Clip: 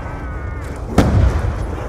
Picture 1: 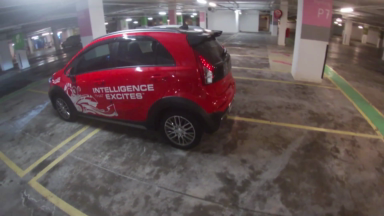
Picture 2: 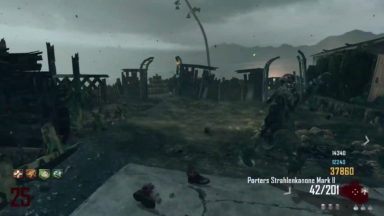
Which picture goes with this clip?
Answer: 2